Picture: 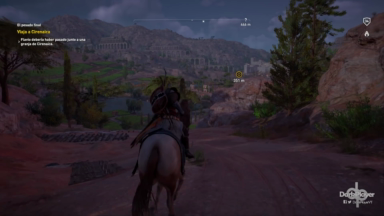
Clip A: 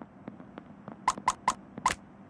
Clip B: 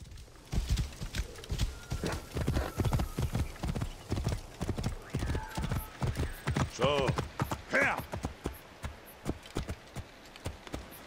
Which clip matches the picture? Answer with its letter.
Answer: B